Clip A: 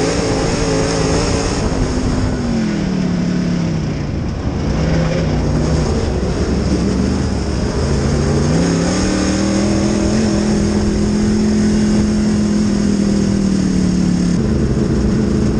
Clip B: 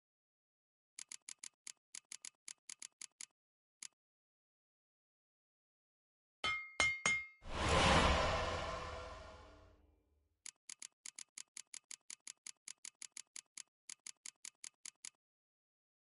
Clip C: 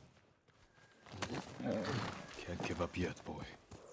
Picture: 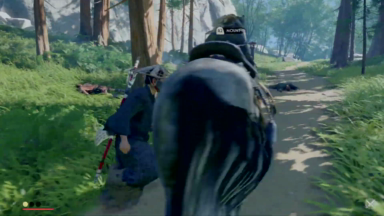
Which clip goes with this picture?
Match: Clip C